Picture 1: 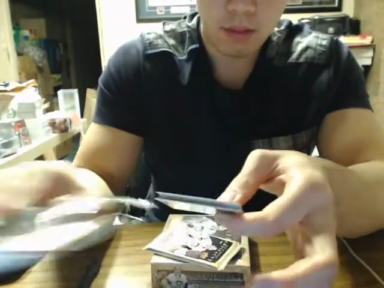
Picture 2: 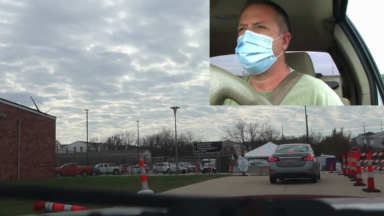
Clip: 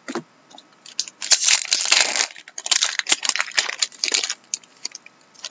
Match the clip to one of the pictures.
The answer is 1